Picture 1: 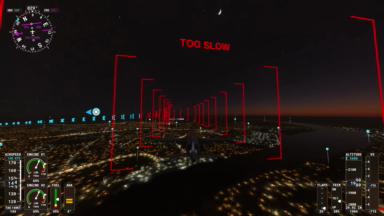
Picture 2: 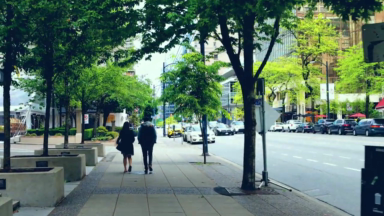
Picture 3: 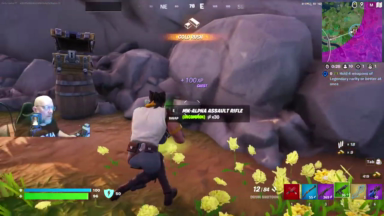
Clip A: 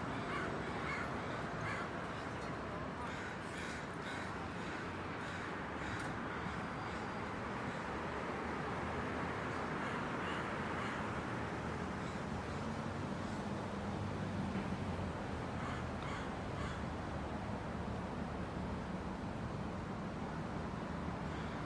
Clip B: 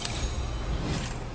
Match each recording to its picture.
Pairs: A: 2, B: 3